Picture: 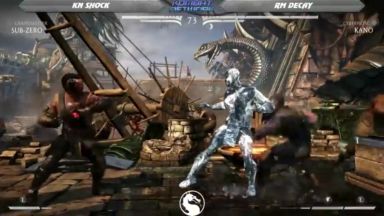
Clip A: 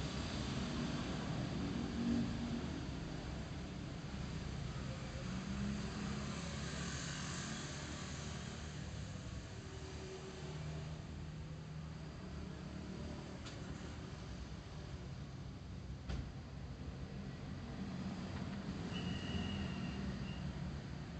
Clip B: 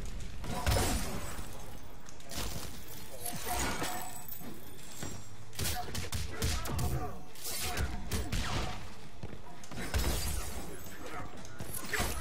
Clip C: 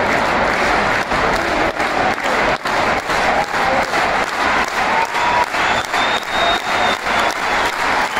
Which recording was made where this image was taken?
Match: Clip B